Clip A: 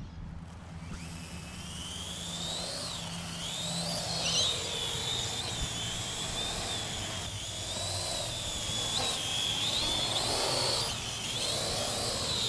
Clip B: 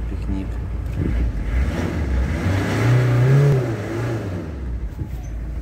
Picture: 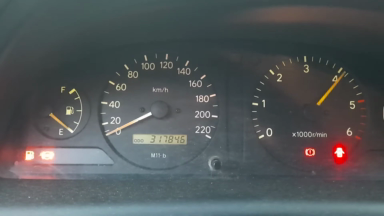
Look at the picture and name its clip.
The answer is B